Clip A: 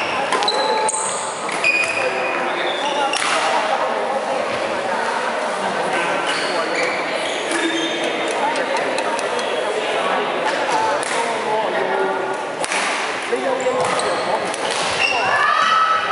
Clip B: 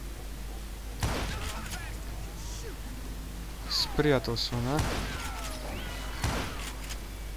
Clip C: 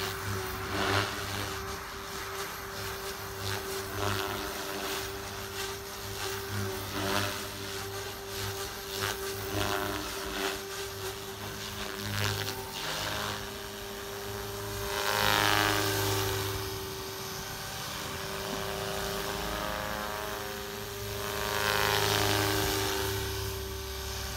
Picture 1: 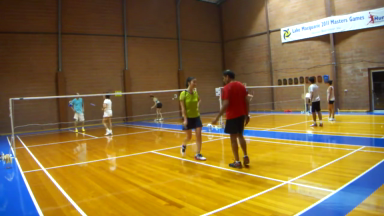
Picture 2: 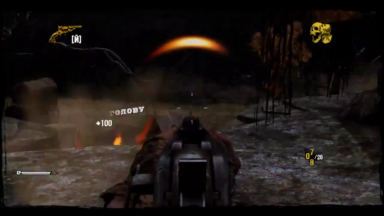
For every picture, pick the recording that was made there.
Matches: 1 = A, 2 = B